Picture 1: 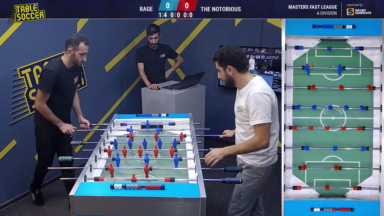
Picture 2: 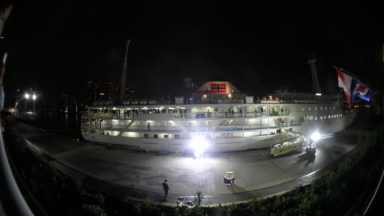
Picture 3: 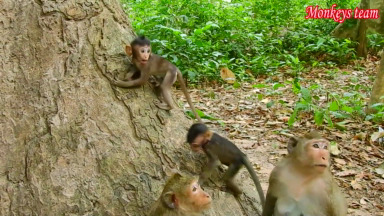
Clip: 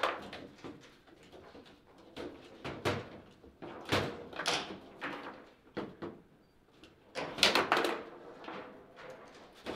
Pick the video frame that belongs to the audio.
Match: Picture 1